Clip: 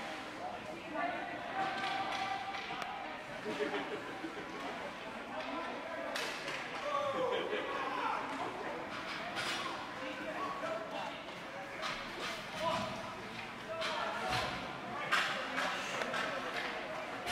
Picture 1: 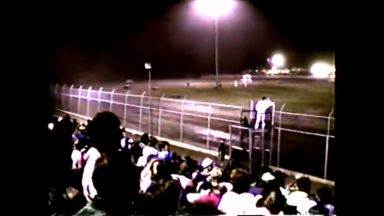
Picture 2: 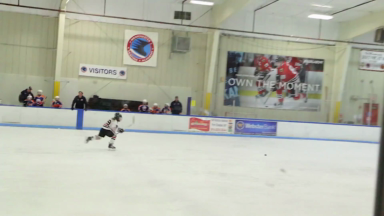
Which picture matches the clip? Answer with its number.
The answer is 2